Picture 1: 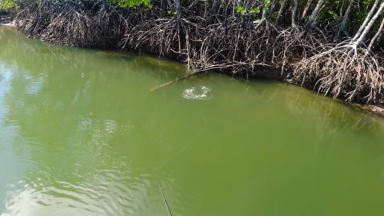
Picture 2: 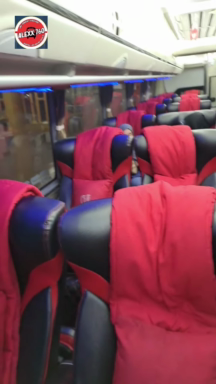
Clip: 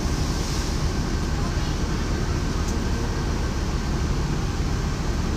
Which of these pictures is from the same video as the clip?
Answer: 2